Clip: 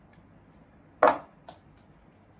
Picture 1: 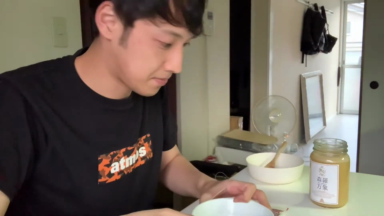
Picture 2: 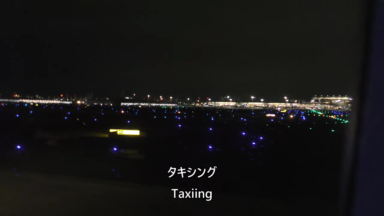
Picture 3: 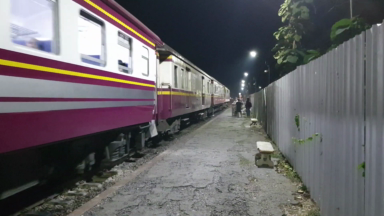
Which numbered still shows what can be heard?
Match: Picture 1